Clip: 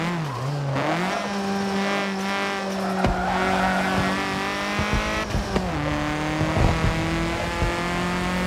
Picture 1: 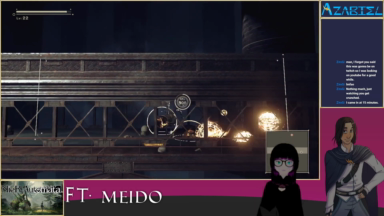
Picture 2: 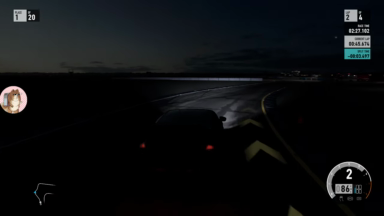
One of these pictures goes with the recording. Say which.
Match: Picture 2